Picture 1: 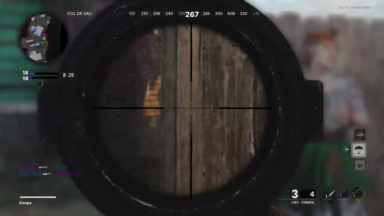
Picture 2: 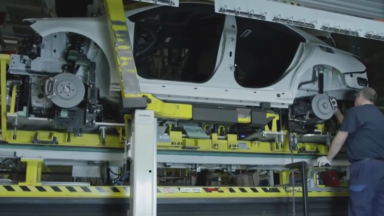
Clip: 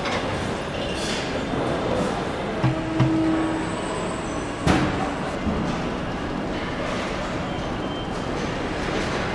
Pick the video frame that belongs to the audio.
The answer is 2